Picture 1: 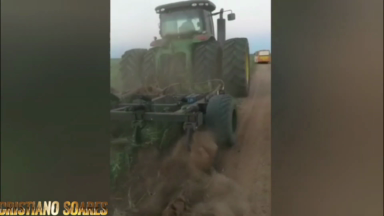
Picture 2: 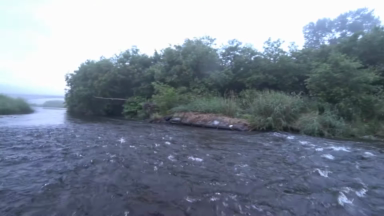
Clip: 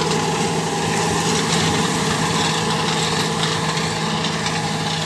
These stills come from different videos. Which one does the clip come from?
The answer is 1